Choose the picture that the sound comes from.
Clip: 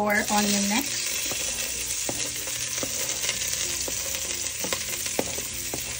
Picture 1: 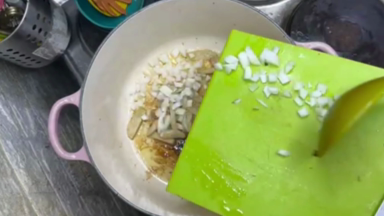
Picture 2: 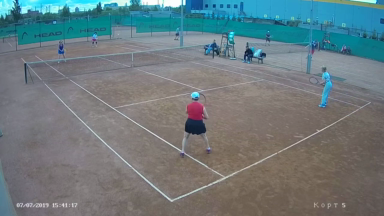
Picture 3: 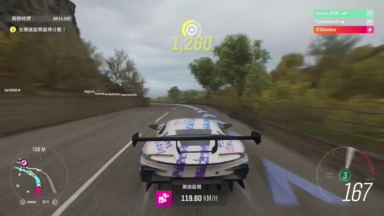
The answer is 1